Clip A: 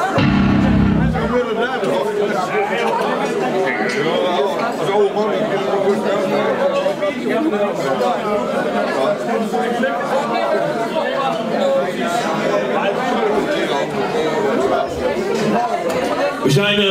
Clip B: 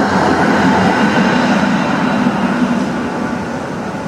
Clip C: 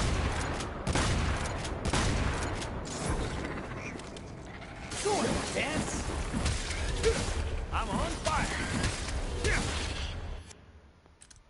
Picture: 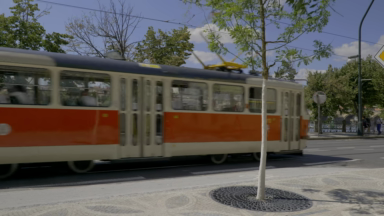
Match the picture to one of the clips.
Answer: B